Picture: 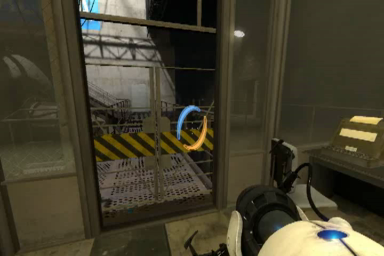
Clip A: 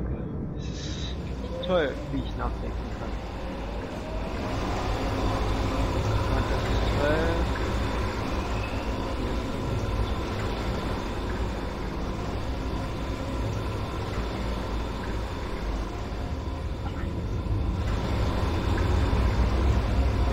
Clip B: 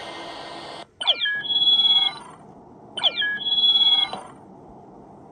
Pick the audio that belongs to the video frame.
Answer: A